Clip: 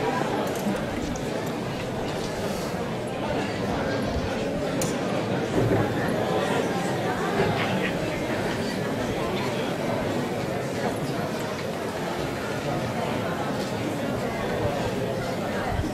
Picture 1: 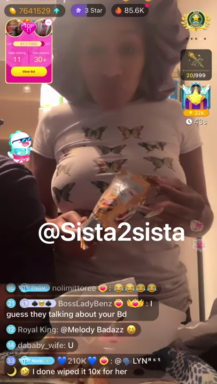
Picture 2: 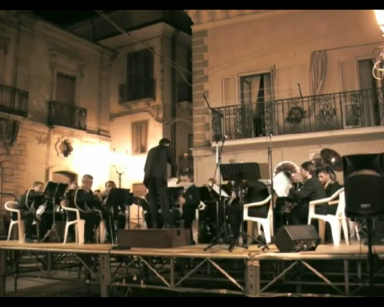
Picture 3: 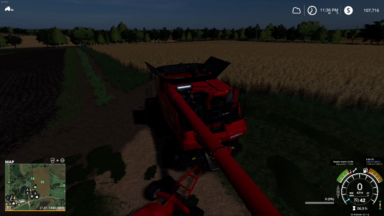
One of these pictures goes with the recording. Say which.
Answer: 2